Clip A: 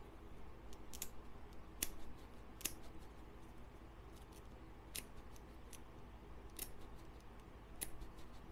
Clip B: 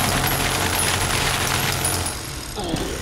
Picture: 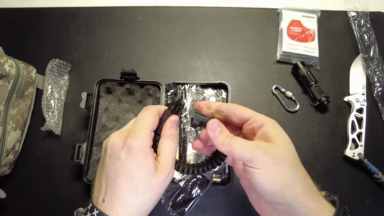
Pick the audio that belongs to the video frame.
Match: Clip A